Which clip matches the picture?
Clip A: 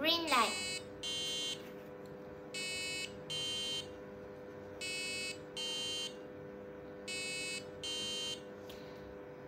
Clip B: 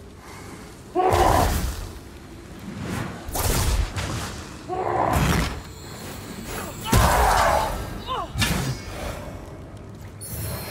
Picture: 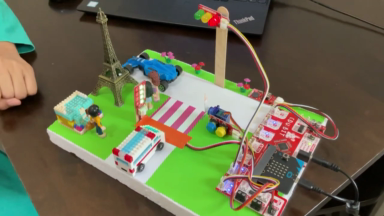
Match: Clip A